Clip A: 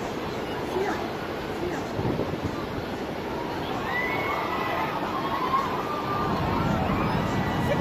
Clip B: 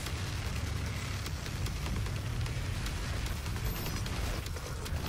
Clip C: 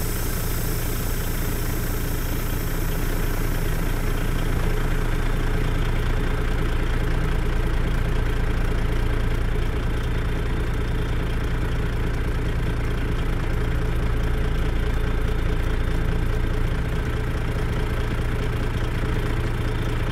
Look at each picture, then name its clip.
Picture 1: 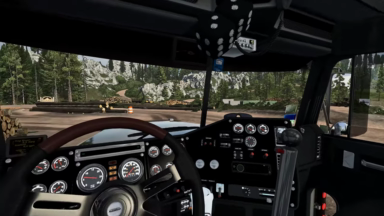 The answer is C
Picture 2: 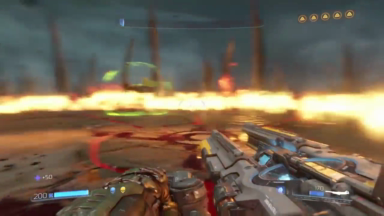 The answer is B